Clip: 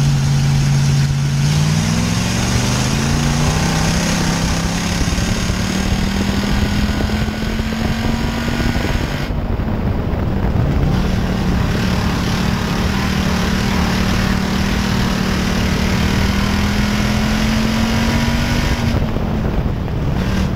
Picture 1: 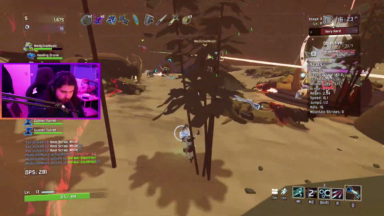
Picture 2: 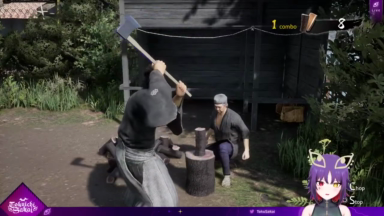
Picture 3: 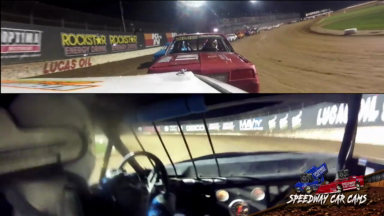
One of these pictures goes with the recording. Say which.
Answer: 3